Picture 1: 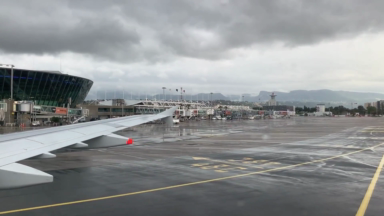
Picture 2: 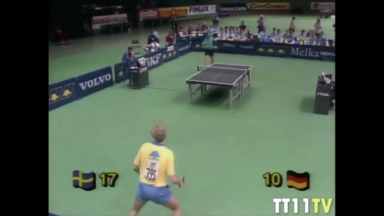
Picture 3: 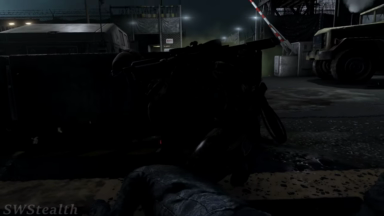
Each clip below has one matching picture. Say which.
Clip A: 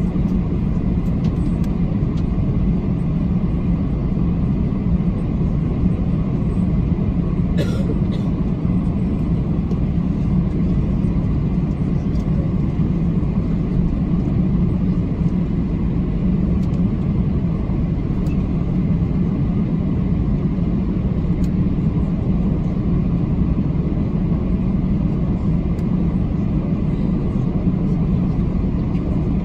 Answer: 1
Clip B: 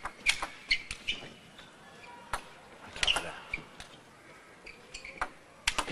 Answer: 2